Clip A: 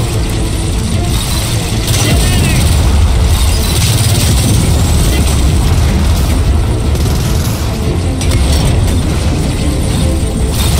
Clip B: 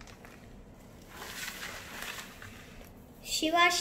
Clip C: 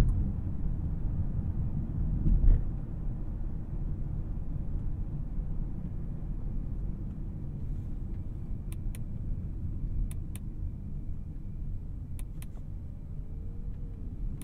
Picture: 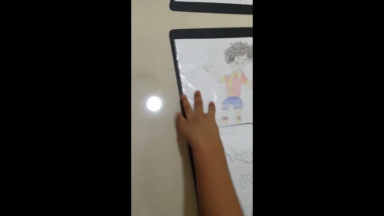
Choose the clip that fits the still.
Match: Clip B